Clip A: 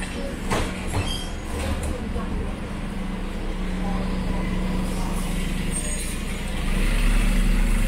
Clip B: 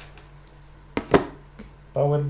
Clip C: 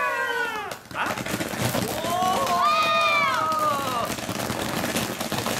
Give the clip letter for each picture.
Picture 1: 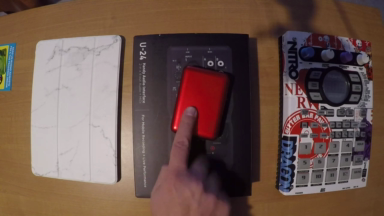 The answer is B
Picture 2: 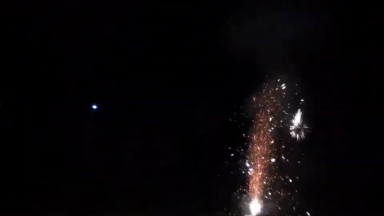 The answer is C